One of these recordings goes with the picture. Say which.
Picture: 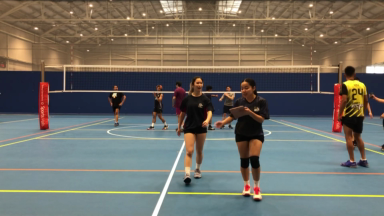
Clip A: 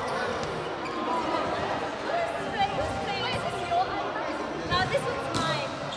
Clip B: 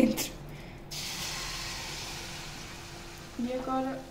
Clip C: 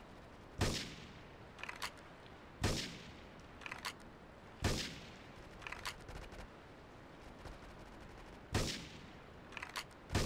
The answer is A